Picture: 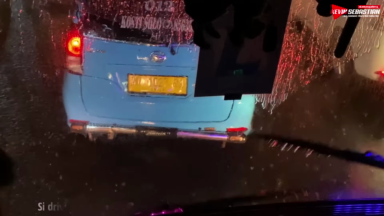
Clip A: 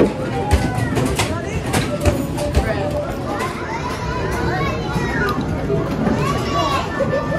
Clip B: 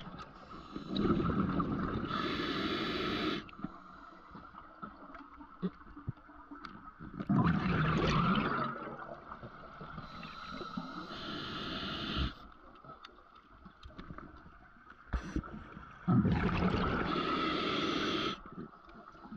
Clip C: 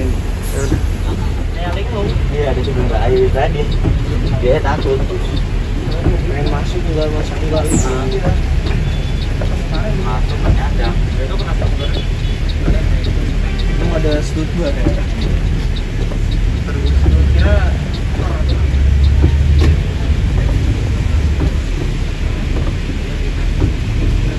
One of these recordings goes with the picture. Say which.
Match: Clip C